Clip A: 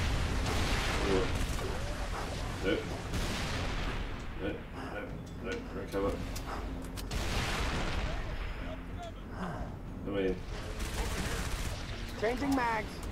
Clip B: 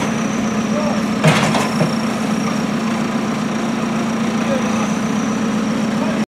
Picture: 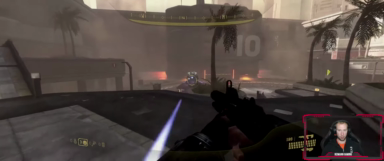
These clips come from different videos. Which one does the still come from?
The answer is A